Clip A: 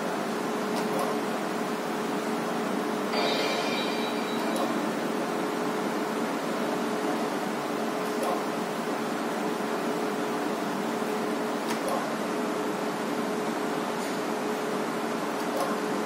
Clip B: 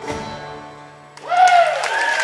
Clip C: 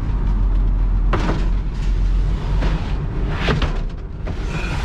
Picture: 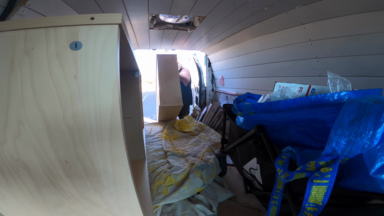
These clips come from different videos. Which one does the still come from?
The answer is C